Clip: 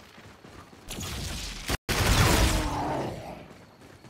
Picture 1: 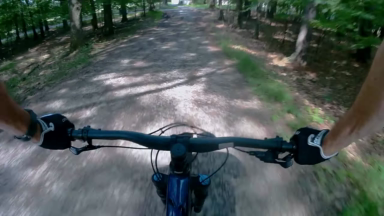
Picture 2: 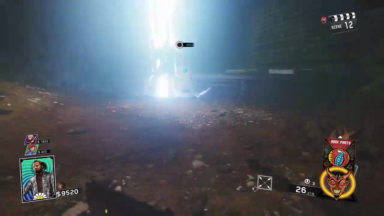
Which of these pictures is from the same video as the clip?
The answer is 2